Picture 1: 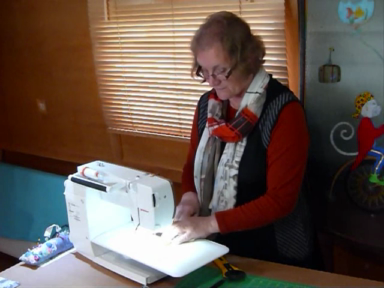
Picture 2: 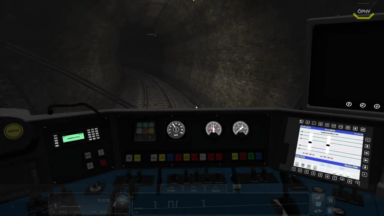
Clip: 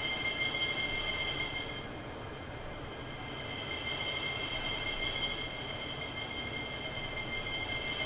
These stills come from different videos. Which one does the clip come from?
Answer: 2